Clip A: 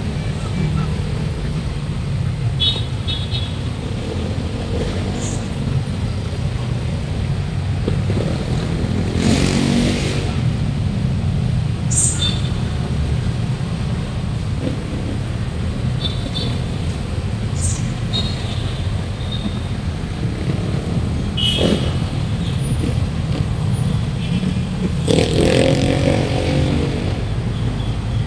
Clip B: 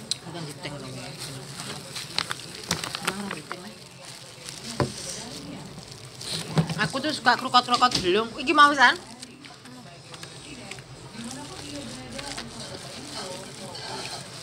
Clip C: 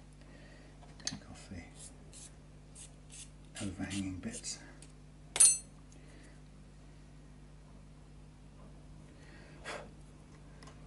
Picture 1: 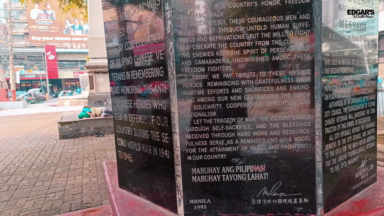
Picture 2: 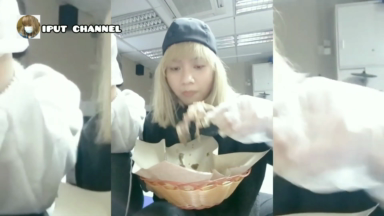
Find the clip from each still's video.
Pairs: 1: A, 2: B